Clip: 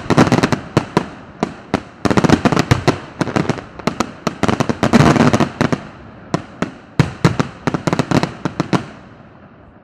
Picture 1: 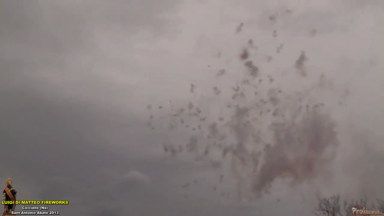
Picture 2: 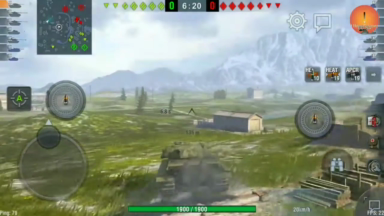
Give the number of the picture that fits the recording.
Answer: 1